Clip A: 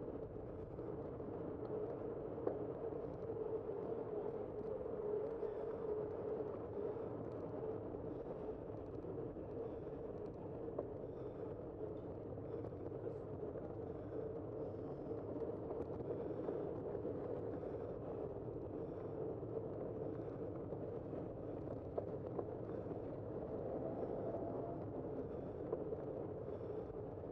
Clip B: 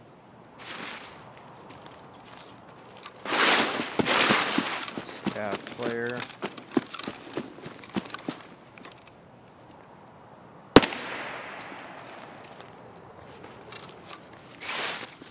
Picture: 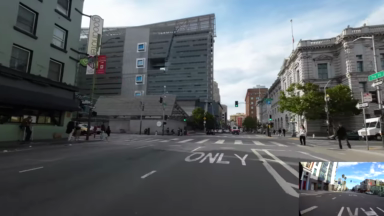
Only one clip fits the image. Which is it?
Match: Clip A